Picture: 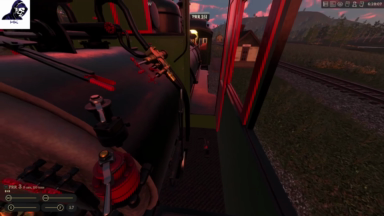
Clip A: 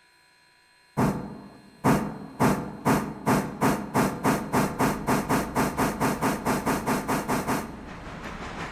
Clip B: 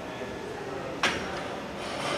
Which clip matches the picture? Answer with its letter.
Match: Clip A